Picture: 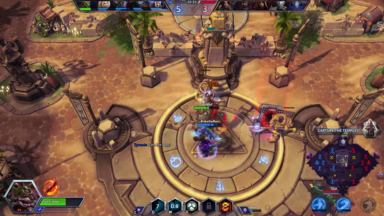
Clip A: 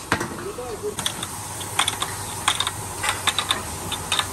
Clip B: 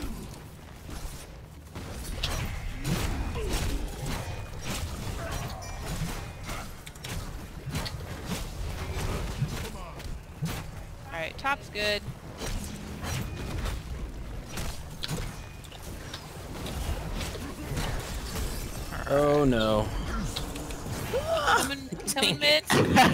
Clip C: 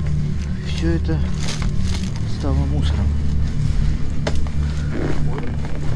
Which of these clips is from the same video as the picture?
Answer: B